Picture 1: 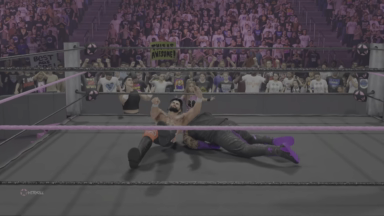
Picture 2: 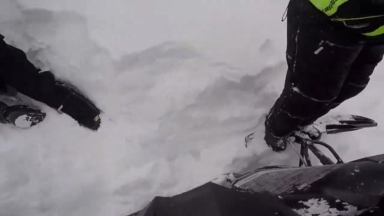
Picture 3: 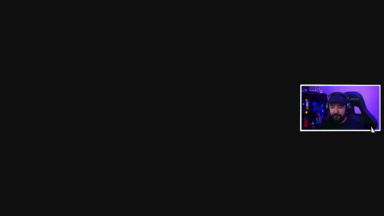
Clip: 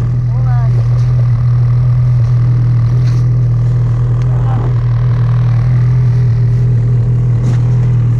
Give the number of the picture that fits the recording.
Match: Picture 2